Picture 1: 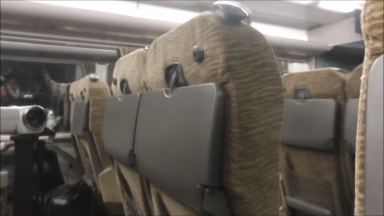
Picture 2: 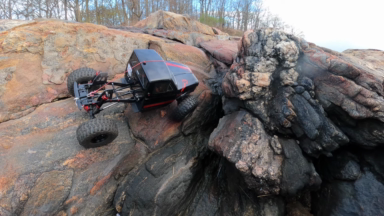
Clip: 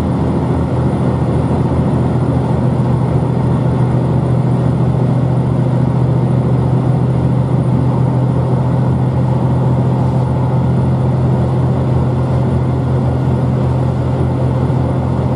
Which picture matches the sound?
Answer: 1